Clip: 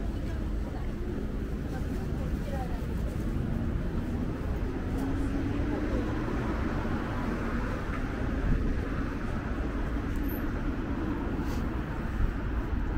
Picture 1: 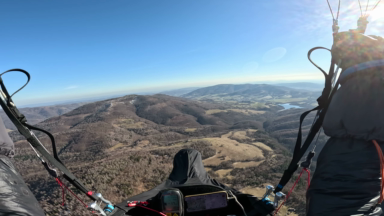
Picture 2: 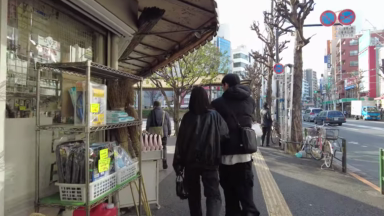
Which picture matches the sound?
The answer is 2